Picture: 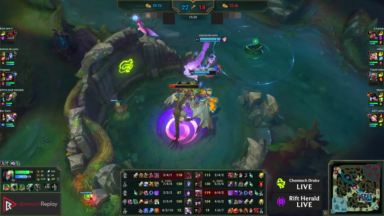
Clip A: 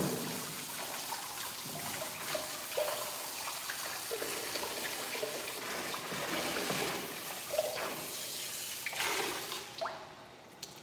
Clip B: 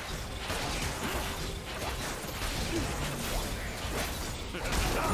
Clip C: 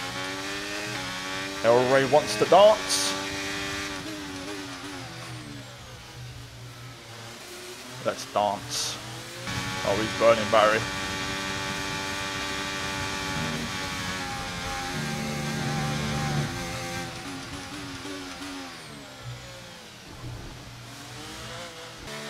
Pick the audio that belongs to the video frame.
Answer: B